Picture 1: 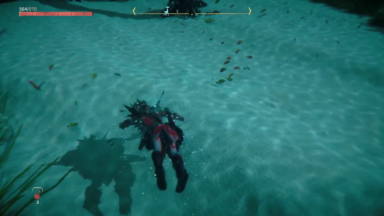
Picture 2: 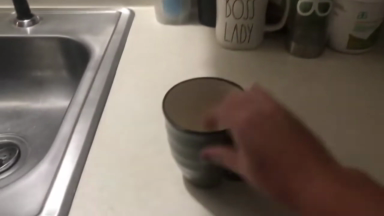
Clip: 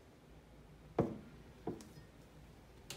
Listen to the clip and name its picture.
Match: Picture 2